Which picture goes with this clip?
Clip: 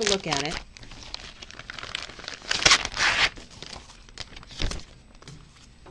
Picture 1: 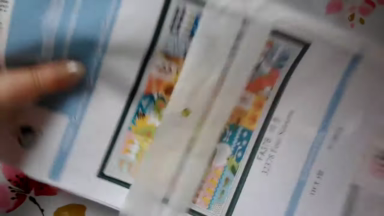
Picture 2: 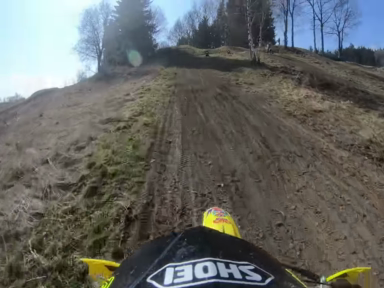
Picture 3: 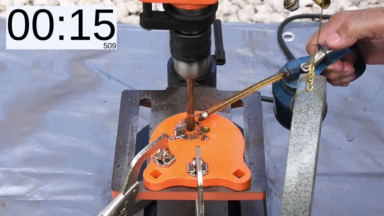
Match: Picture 1